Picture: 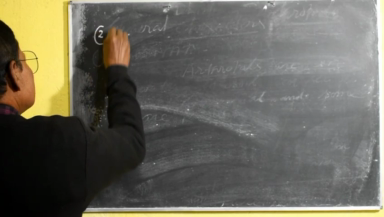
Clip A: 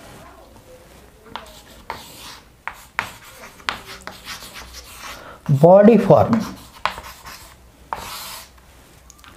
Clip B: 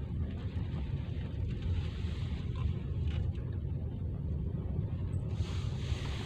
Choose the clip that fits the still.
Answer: A